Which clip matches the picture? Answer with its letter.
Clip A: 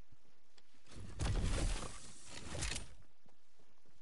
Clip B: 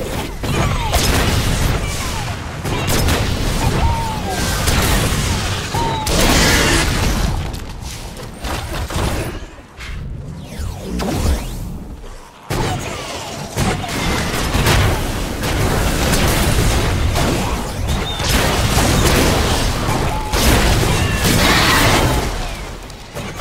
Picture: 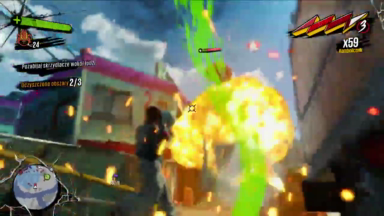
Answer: B